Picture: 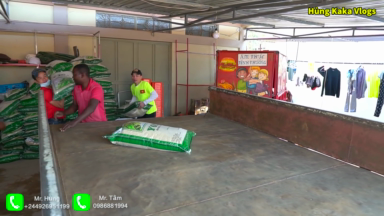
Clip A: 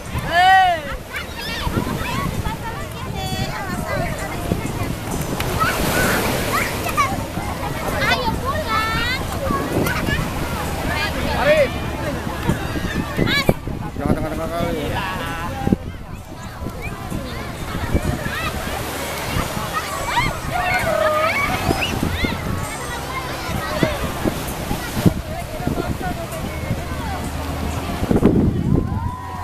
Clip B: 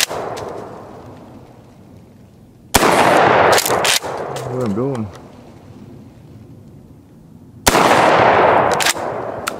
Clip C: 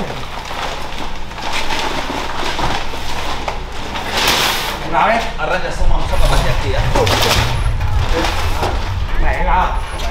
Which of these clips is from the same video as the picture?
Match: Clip C